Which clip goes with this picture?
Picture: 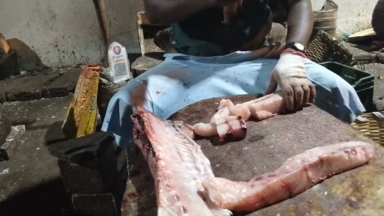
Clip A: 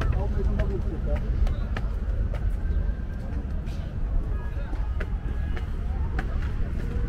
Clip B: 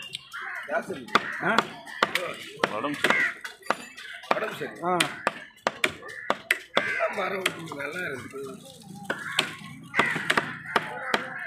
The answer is B